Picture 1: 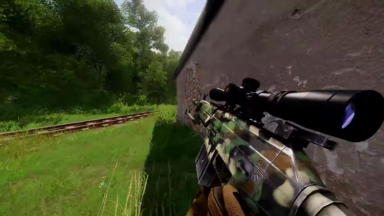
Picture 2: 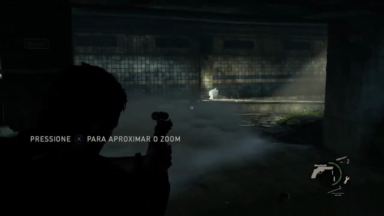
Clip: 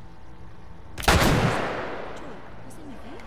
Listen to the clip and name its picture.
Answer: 2